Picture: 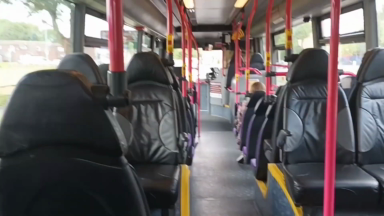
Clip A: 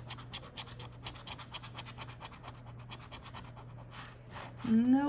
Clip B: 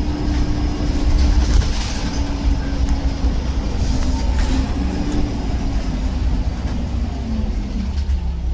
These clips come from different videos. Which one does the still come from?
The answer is B